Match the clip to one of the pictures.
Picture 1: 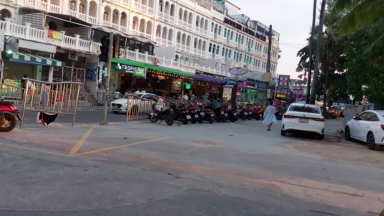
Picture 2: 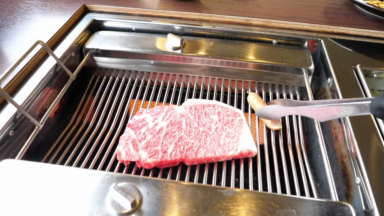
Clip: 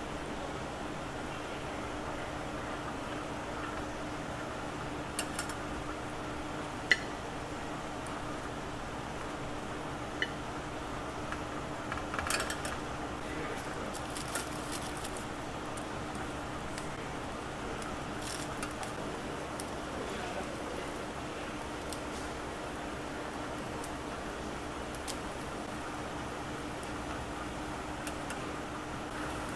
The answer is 2